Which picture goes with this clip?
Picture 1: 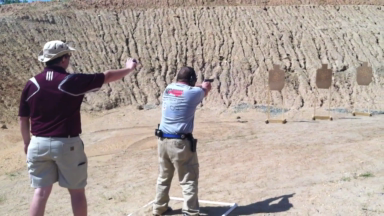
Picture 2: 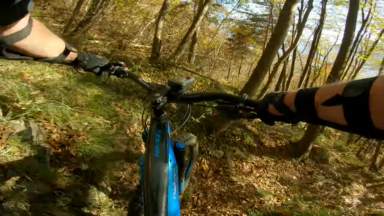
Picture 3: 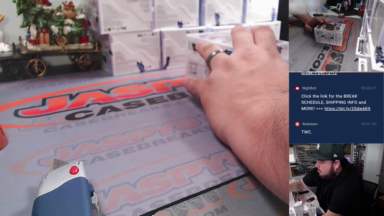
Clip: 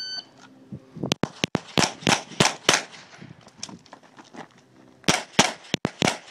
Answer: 1